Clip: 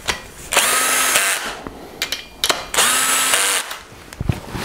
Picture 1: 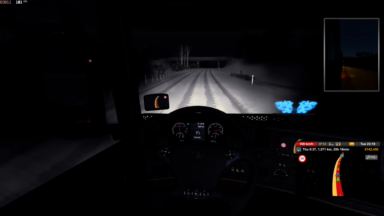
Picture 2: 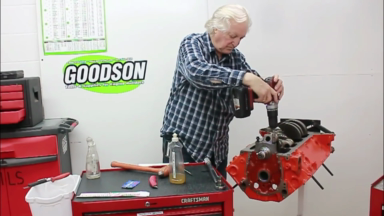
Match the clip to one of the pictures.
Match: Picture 2